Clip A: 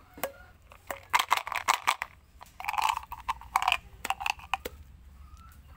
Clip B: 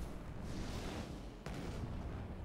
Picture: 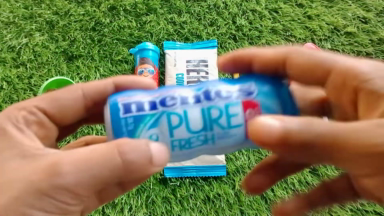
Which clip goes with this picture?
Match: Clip A